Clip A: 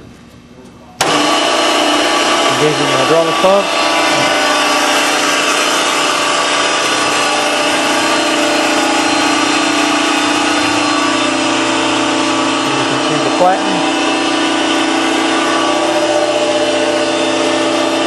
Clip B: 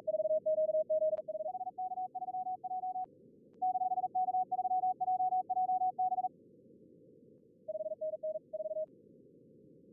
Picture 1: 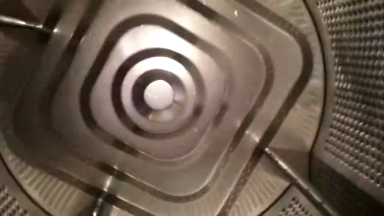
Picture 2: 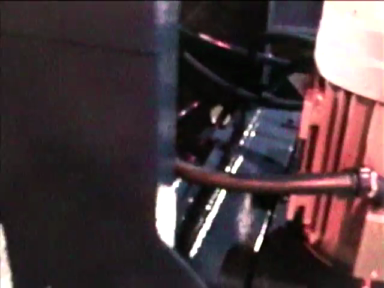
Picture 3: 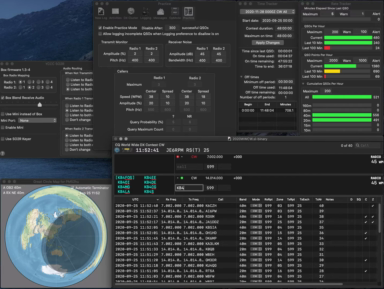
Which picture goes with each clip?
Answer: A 2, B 3